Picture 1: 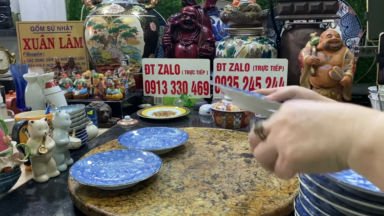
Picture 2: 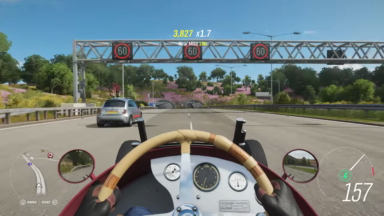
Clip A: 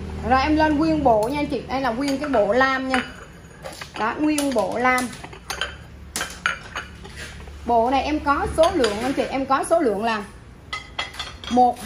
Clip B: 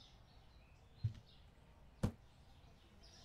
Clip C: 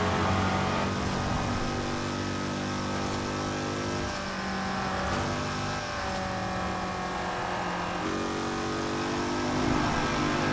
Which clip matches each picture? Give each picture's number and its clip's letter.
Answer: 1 A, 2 C